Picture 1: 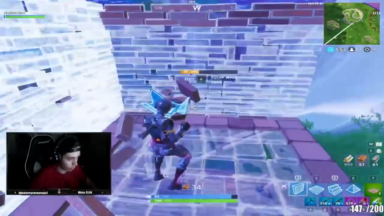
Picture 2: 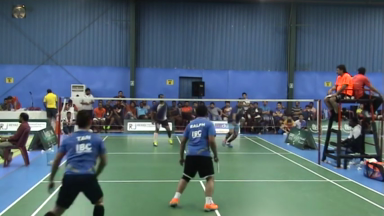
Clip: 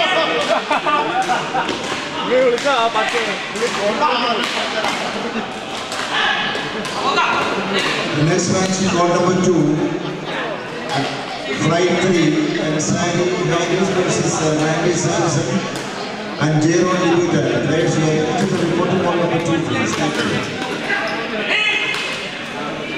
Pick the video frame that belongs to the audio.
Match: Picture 2